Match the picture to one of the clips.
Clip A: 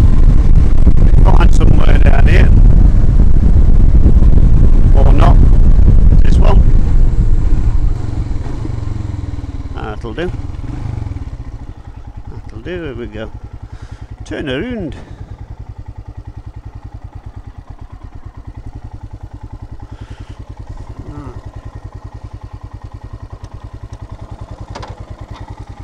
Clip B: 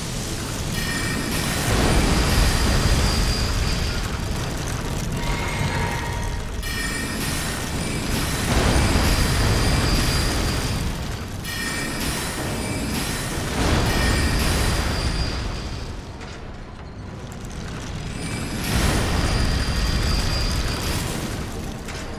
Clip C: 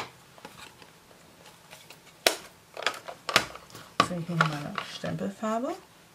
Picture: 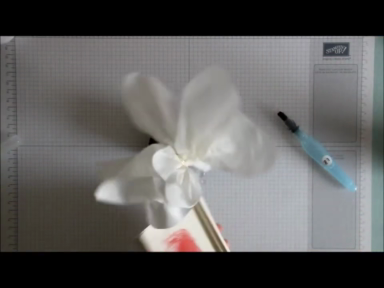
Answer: C